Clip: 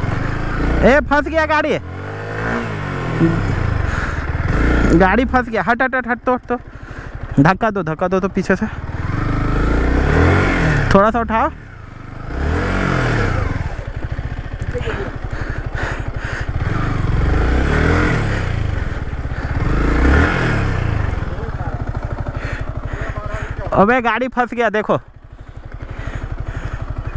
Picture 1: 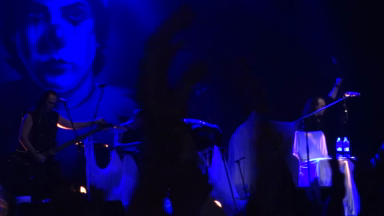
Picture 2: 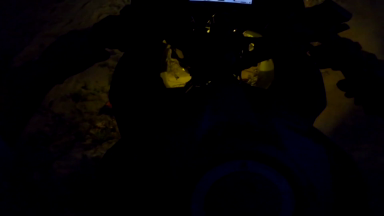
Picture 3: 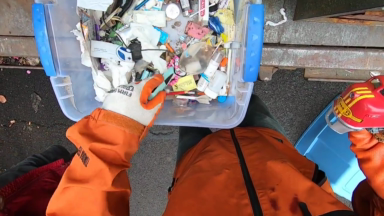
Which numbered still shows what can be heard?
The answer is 2